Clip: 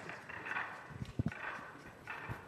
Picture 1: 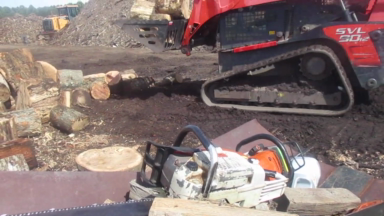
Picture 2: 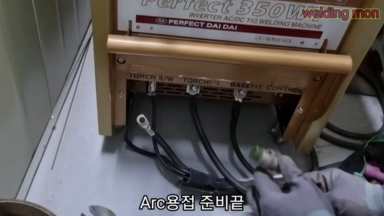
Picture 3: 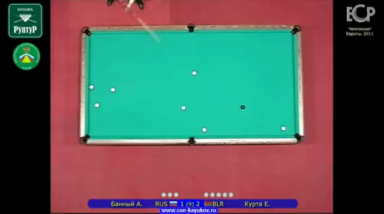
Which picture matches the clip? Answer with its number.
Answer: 3